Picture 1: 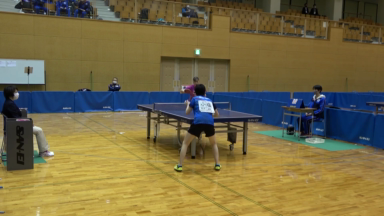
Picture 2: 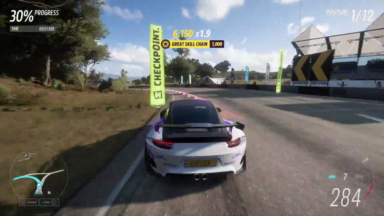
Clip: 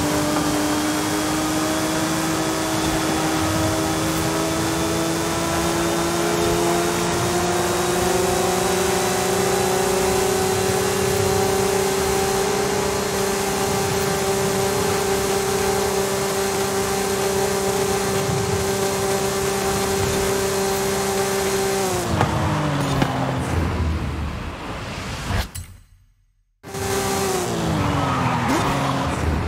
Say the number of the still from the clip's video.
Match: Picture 2